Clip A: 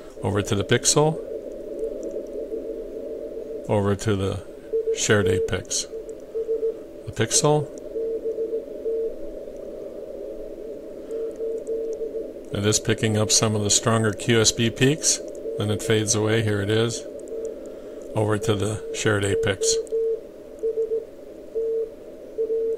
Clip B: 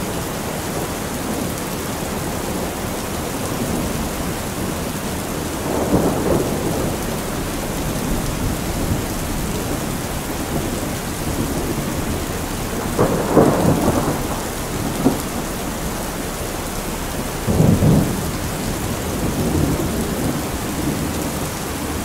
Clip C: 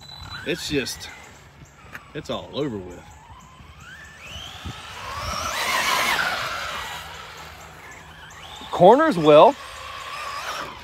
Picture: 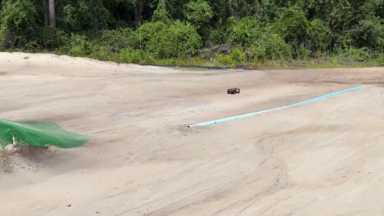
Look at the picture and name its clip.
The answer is C